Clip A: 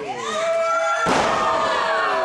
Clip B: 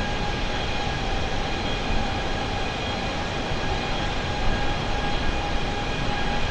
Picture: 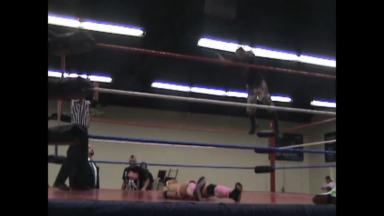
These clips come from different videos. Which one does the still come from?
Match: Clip A